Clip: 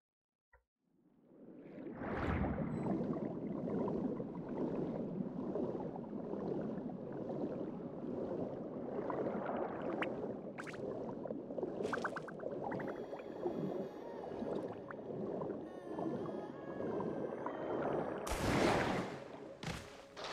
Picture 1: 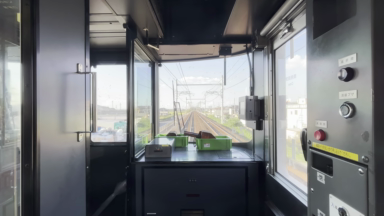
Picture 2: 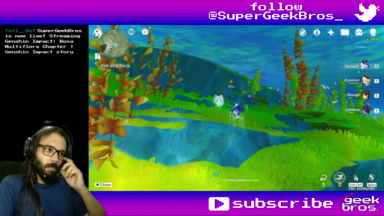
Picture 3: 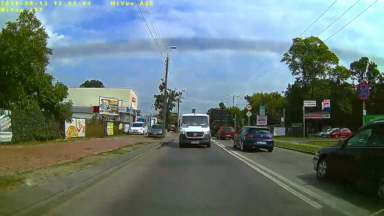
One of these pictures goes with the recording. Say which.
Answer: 2